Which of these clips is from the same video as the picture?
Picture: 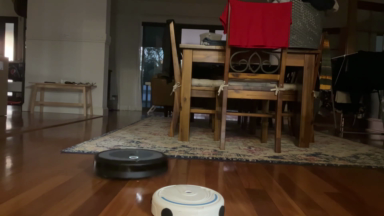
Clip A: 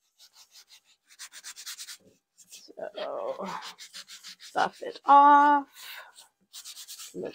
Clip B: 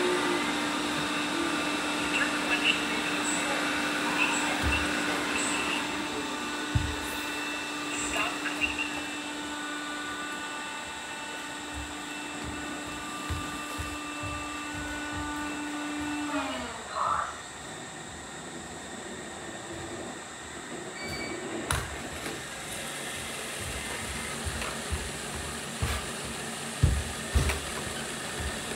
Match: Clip B